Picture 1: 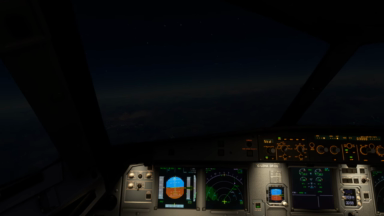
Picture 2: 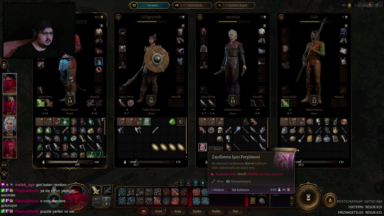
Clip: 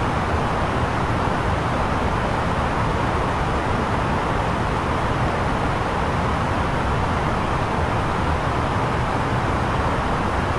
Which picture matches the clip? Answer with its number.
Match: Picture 1